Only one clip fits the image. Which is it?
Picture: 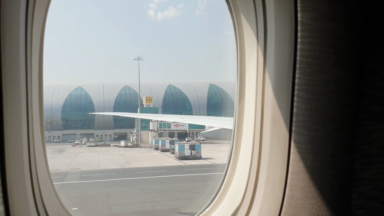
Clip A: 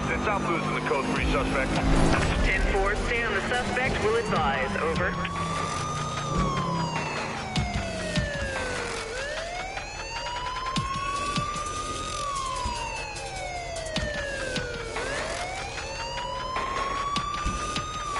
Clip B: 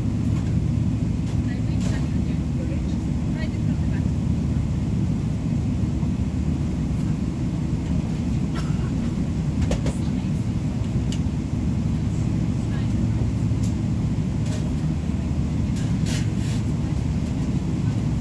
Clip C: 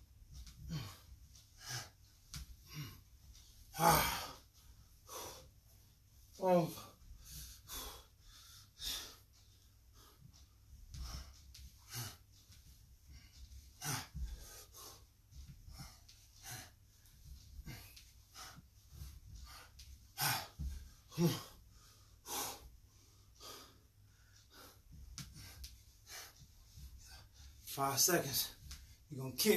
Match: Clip B